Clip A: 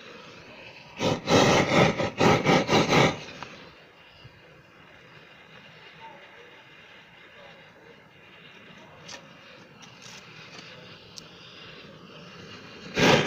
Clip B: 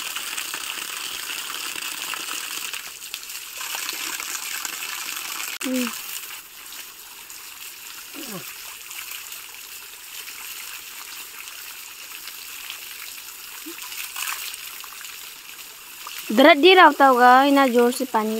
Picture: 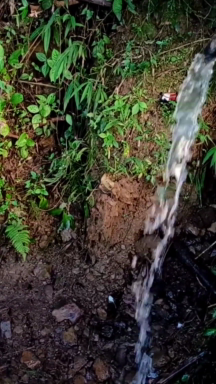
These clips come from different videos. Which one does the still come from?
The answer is B